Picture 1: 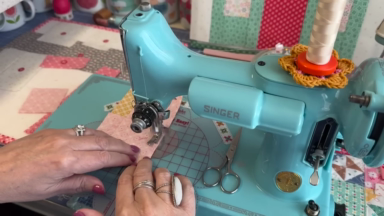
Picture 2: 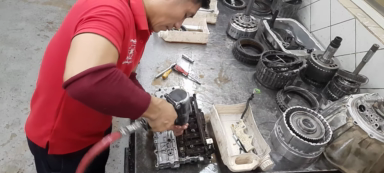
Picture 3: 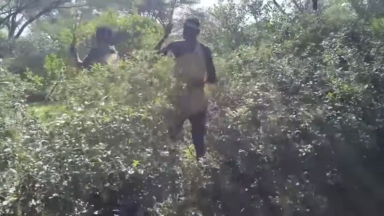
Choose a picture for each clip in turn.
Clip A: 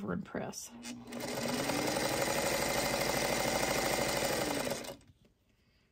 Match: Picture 1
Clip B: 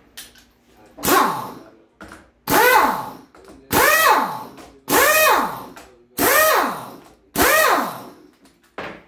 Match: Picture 2